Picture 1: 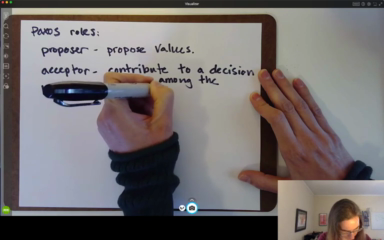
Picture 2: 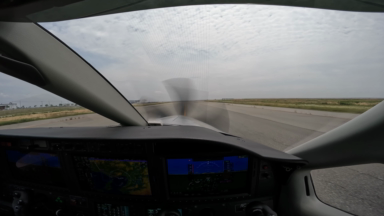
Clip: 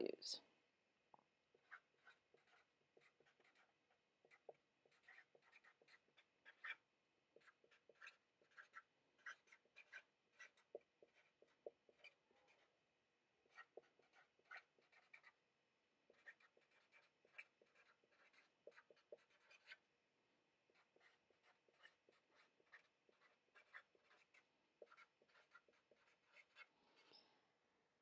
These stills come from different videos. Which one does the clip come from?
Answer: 1